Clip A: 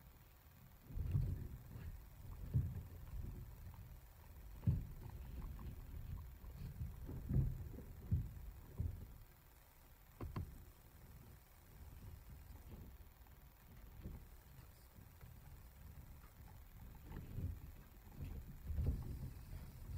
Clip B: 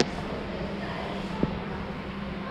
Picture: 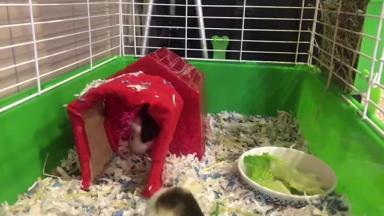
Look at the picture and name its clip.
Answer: A